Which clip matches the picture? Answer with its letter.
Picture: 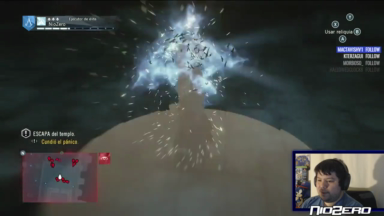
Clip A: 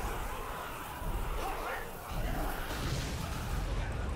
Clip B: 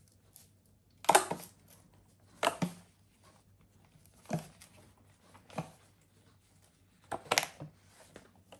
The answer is A